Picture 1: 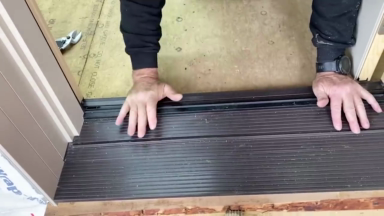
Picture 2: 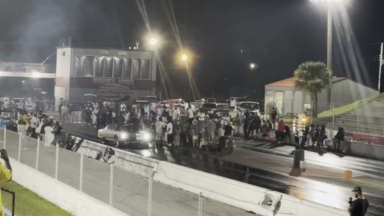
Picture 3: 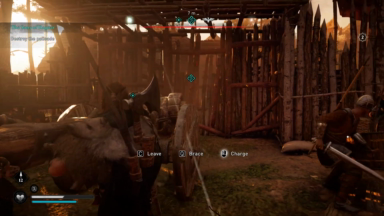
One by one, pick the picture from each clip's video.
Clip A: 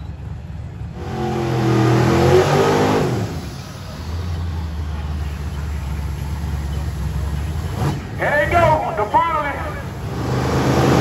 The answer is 2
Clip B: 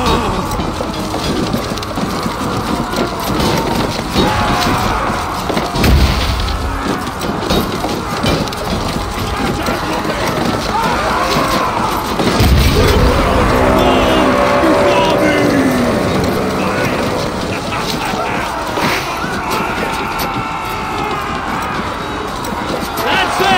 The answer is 3